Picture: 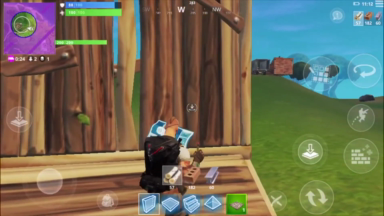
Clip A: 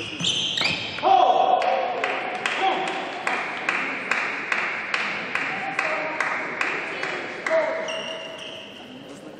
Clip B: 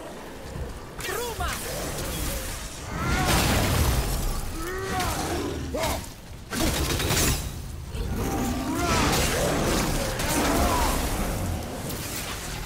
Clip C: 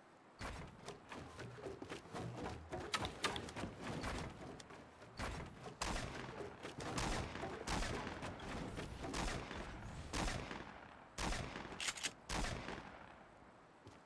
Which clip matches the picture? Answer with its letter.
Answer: C